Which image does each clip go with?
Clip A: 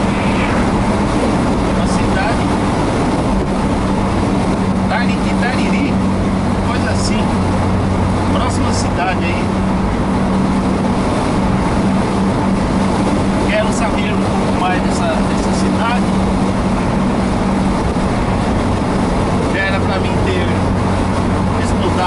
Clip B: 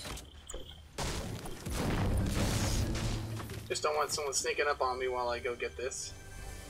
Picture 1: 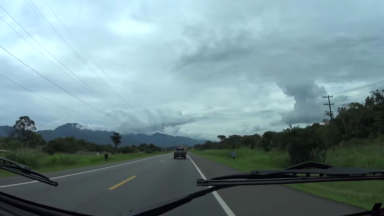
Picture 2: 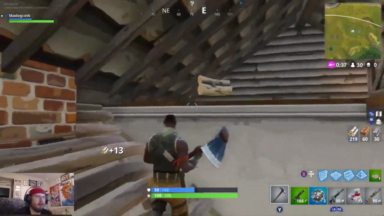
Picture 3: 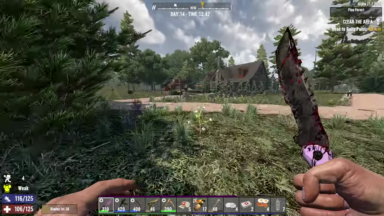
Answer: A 1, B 2